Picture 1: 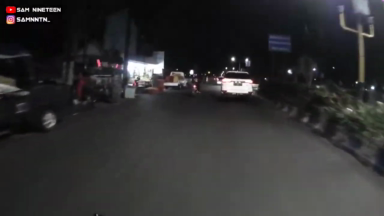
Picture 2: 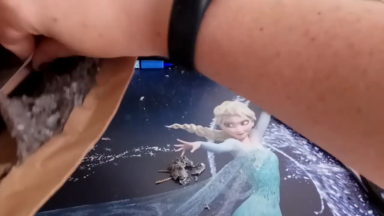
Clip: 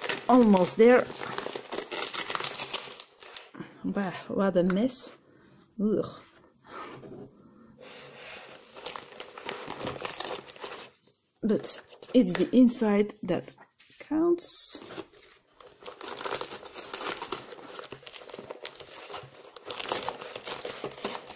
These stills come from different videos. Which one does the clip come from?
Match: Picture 2